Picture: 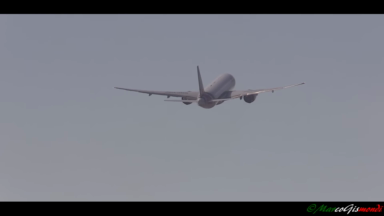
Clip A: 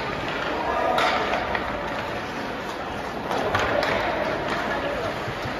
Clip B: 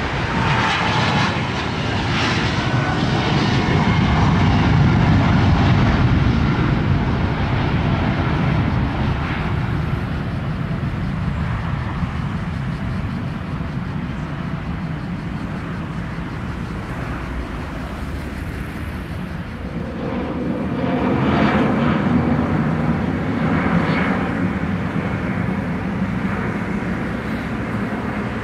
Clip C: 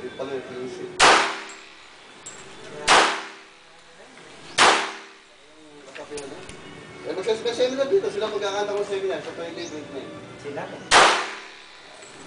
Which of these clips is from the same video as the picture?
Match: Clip B